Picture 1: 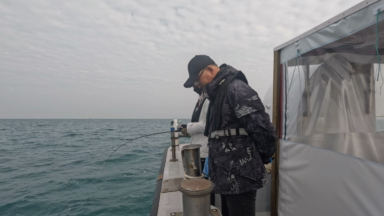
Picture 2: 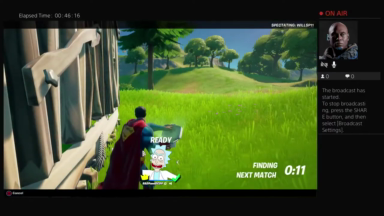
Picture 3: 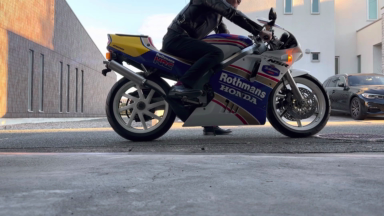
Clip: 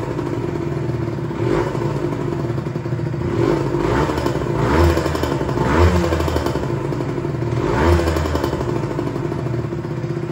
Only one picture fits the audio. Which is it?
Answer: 3